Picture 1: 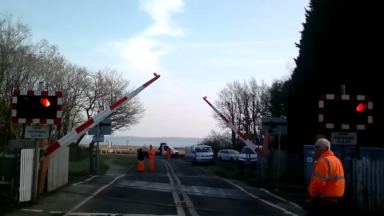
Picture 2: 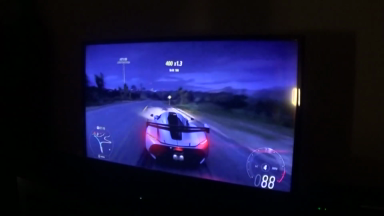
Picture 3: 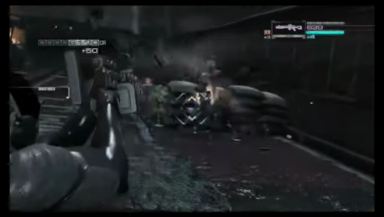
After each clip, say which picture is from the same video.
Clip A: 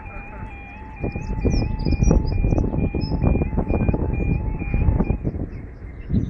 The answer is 1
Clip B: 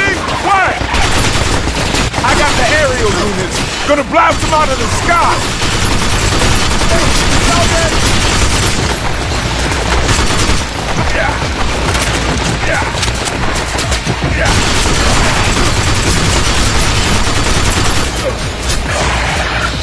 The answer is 3